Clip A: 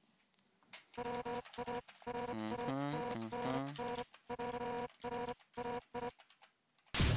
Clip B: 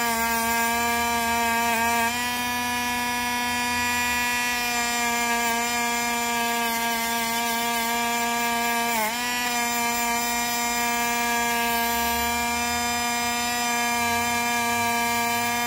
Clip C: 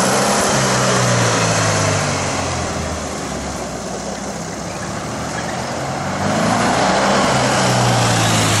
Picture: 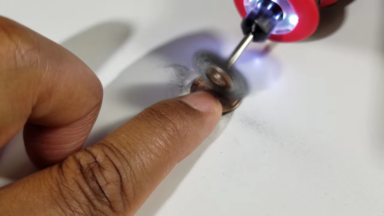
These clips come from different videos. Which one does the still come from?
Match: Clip B